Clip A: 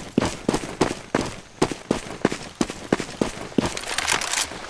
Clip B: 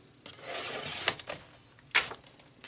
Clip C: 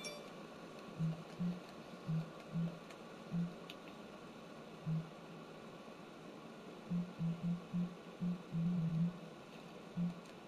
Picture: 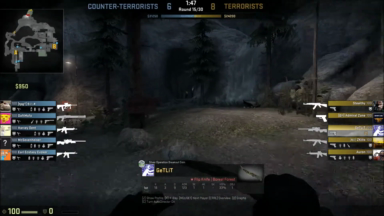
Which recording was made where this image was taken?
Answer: A